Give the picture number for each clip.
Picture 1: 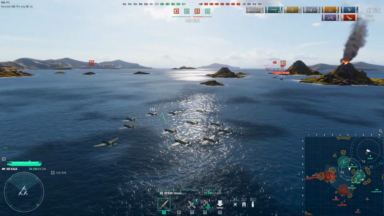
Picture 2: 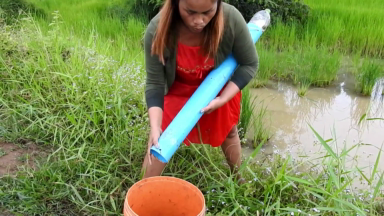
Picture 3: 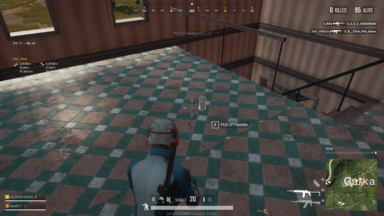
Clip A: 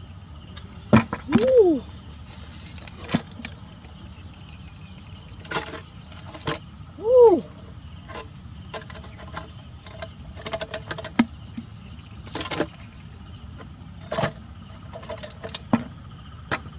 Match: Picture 2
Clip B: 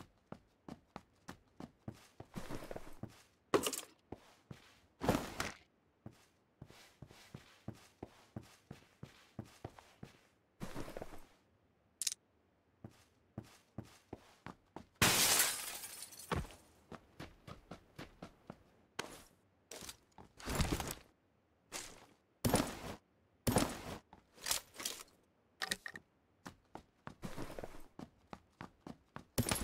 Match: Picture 3